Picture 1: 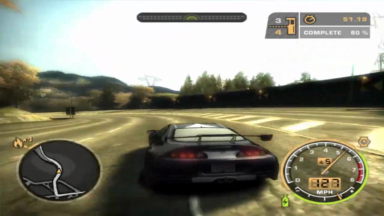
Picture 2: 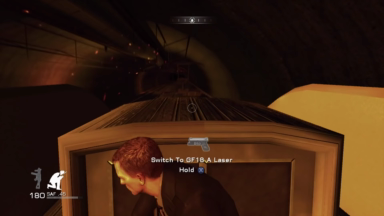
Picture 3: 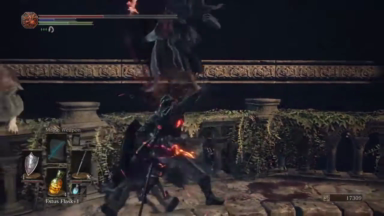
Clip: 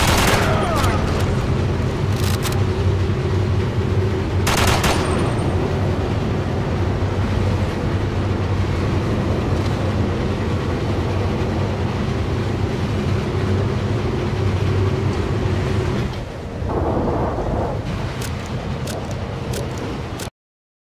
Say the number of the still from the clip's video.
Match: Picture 2